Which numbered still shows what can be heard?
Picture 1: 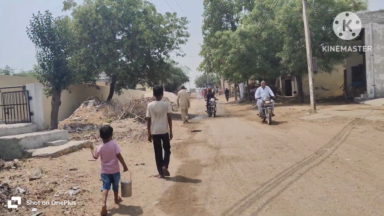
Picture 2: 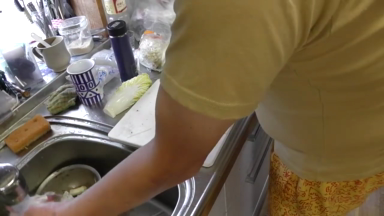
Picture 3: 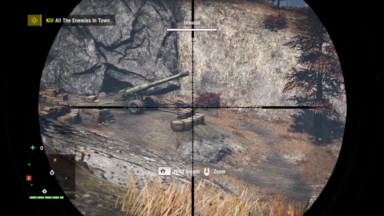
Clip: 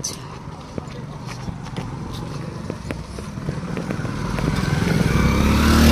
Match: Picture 1